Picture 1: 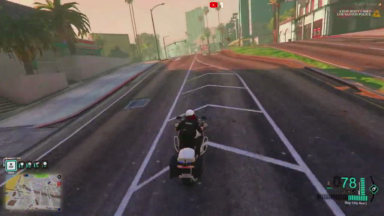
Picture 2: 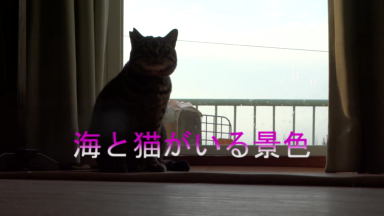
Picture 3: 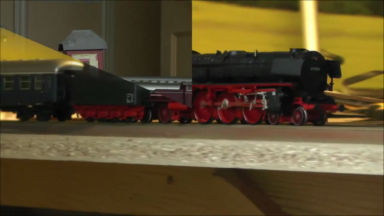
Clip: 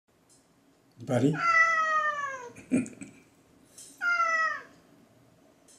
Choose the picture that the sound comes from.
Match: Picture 2